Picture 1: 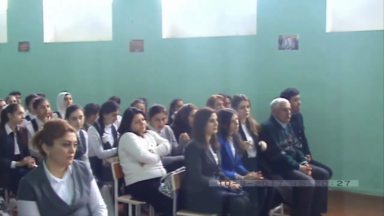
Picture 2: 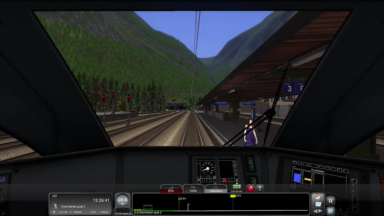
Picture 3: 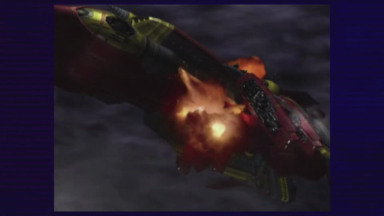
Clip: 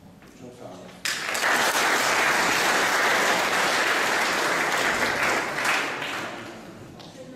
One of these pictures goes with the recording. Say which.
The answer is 1